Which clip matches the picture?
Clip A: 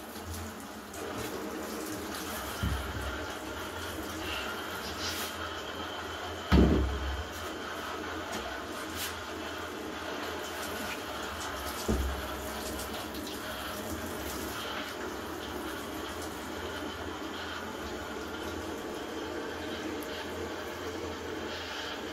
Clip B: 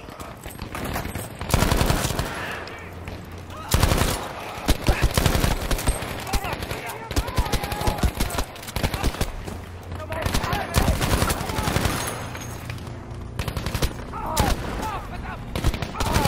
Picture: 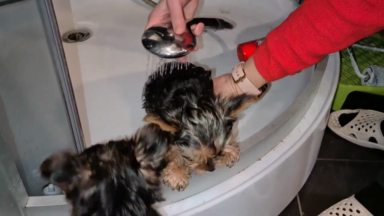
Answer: A